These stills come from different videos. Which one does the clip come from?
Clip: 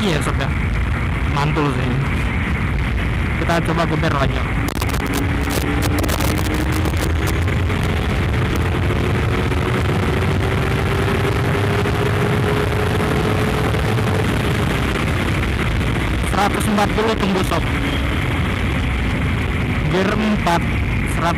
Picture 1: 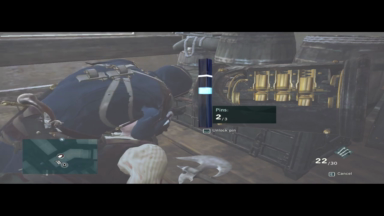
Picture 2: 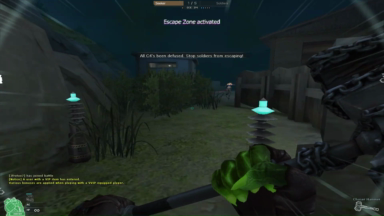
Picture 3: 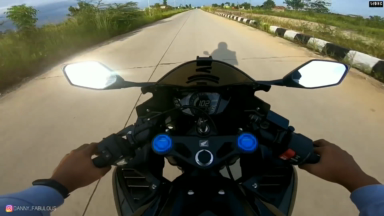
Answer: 3